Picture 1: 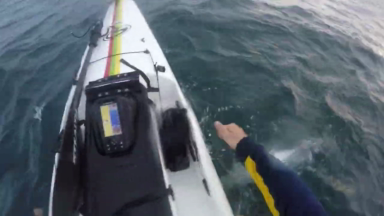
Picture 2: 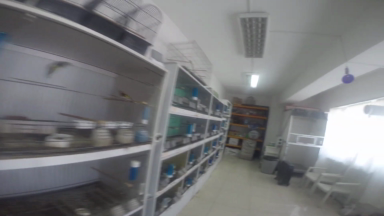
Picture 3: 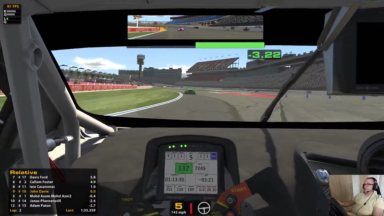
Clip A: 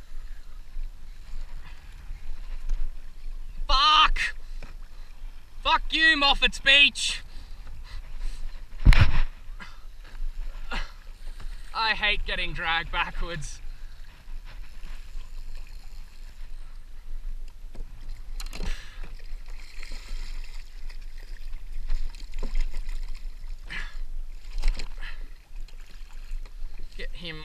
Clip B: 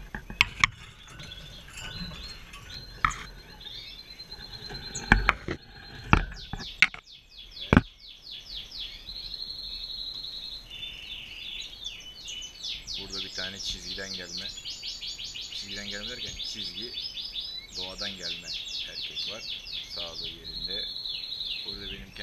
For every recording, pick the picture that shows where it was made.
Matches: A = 1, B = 2